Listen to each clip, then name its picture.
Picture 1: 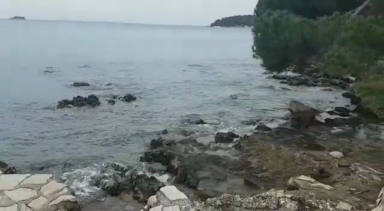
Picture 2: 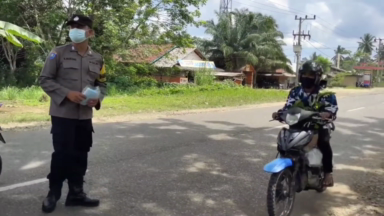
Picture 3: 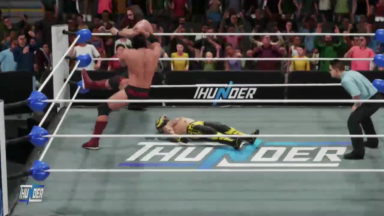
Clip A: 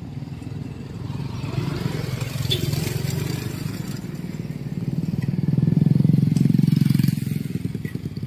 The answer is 2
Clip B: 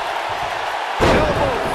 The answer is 3